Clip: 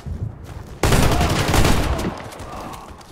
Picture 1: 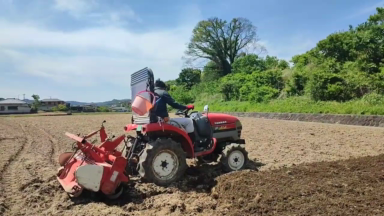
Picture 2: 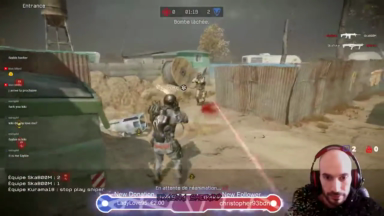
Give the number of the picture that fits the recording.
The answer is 2